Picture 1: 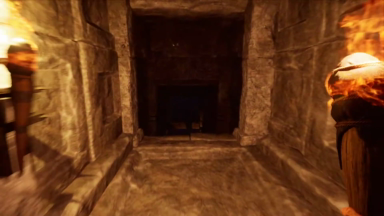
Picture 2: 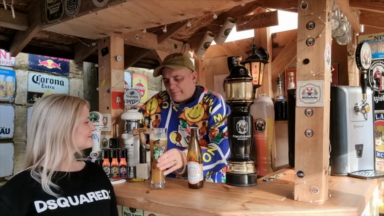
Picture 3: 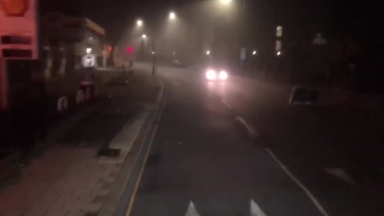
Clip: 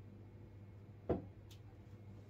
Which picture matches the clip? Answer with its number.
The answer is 2